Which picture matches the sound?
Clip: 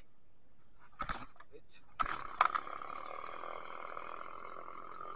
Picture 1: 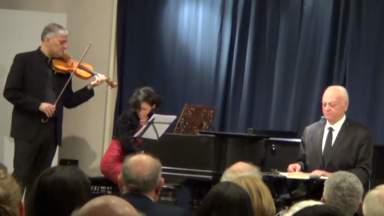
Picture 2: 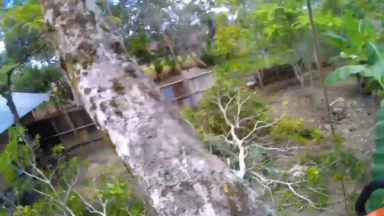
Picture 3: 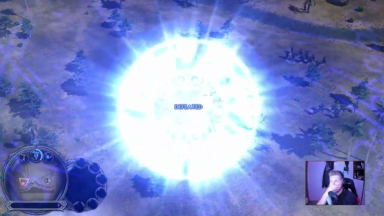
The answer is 2